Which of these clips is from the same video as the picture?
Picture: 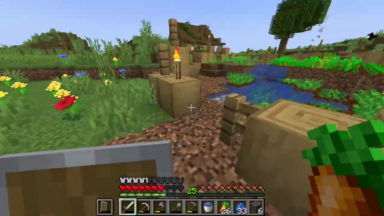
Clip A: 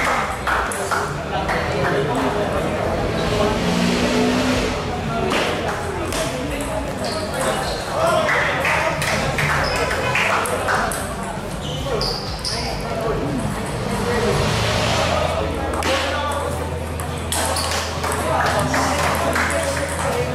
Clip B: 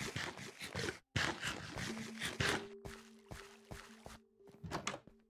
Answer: B